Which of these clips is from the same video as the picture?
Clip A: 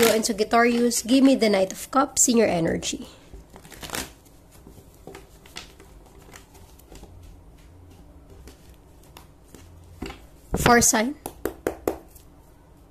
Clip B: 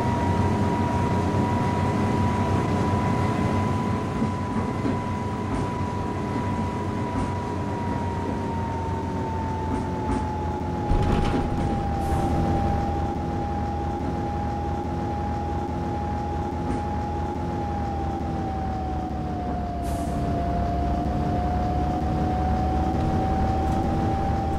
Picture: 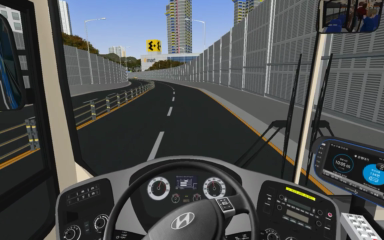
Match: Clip B